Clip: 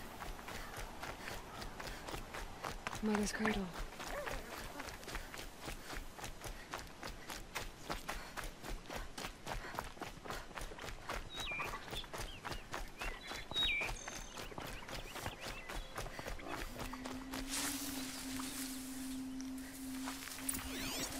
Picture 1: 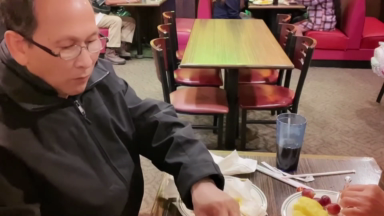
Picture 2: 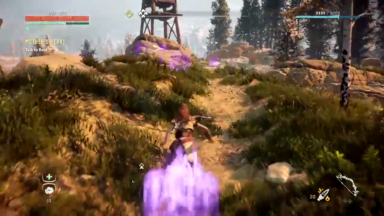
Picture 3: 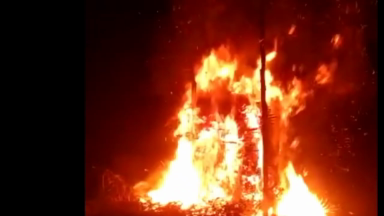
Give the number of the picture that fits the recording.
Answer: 2